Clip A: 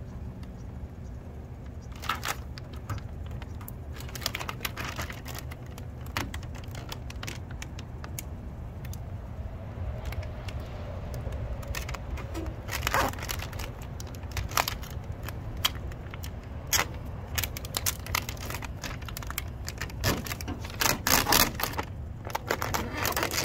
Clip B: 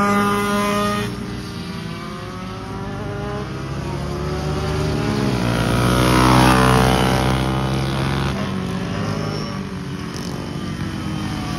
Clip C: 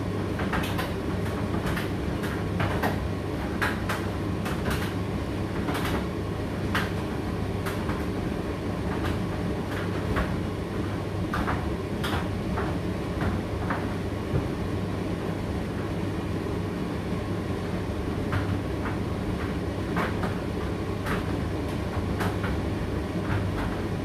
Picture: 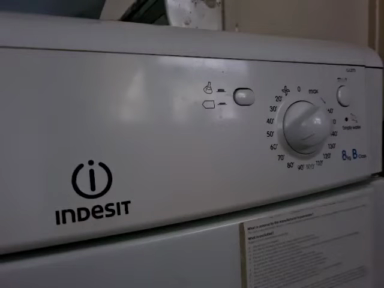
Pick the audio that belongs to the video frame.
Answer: C